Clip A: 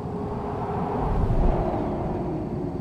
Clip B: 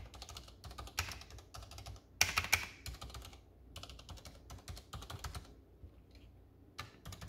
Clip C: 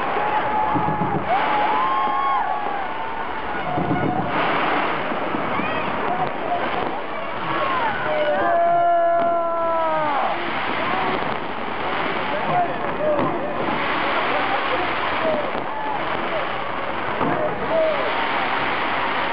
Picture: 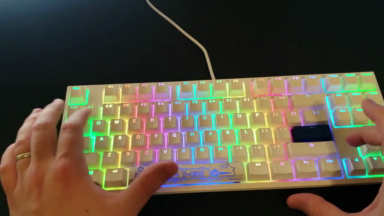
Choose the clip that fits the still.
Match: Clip B